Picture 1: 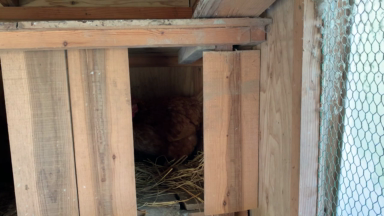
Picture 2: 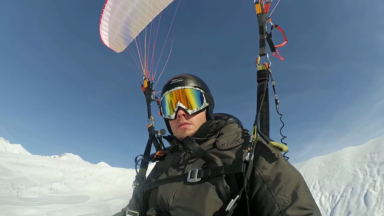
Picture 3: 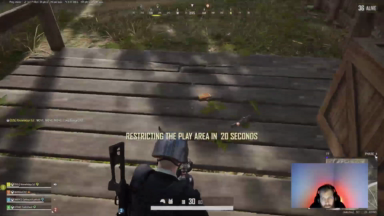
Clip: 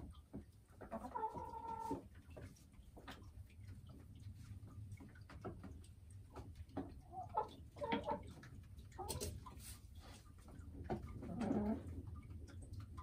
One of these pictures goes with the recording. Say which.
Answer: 1